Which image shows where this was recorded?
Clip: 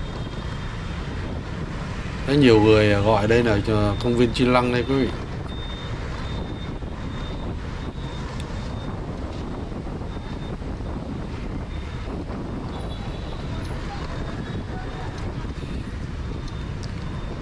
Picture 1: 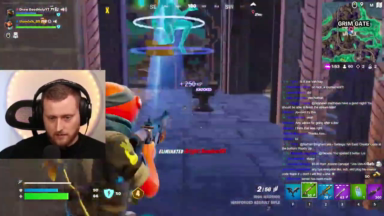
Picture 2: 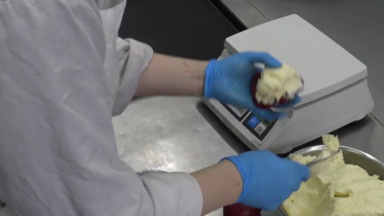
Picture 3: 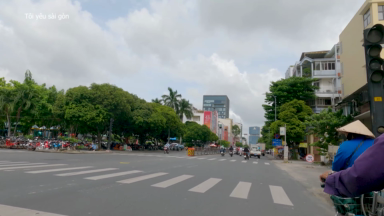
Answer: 3